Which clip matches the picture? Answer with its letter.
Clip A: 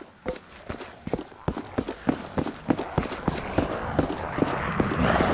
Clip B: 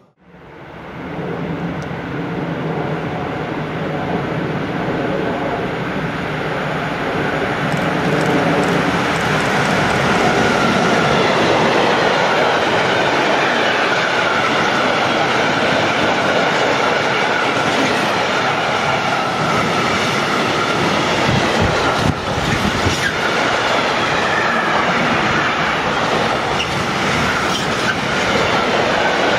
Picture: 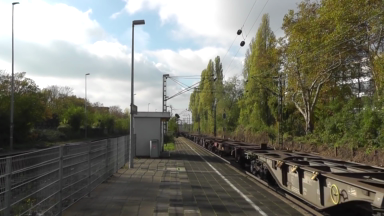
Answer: B